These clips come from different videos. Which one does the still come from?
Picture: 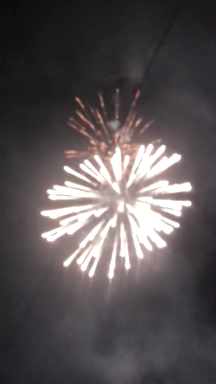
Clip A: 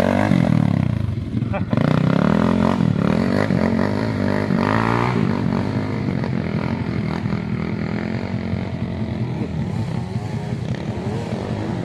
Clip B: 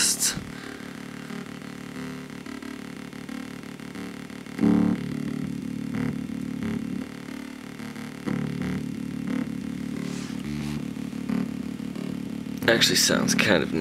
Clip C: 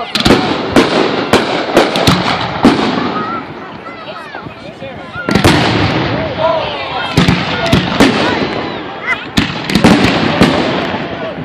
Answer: C